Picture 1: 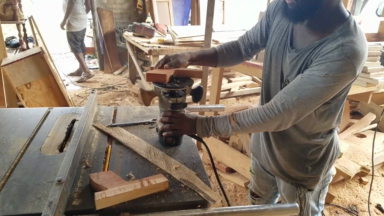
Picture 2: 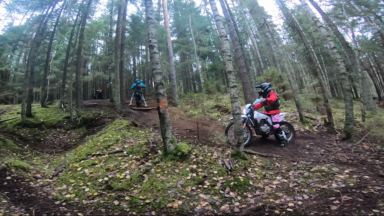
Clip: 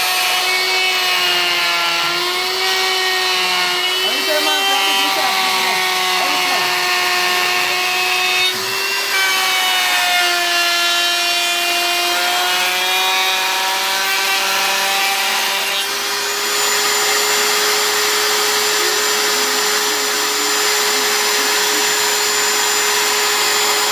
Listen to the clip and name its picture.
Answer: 1